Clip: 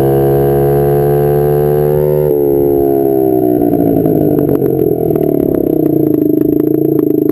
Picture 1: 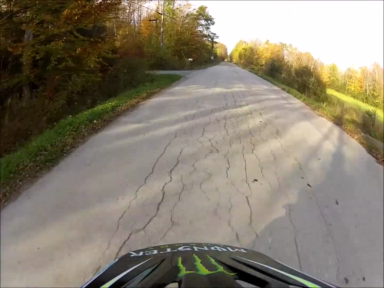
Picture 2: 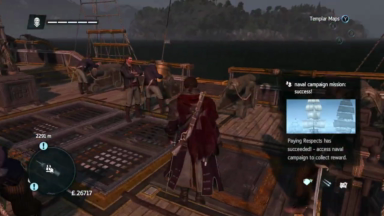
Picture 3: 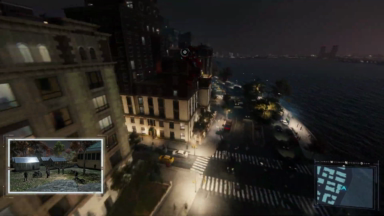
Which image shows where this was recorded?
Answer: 1